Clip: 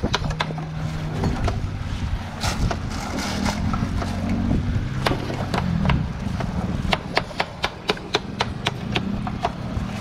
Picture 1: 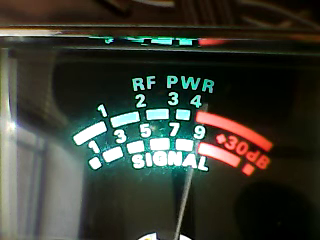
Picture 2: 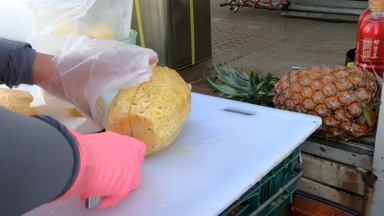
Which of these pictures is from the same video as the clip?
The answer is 2